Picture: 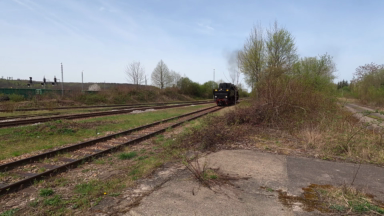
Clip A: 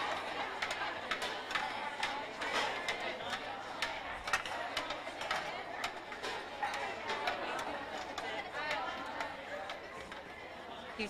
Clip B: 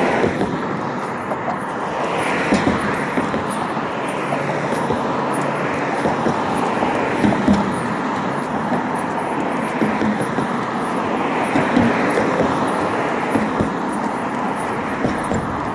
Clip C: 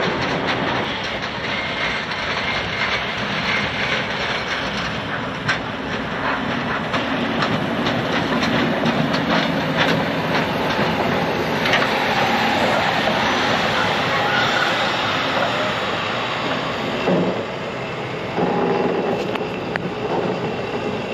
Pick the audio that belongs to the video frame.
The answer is C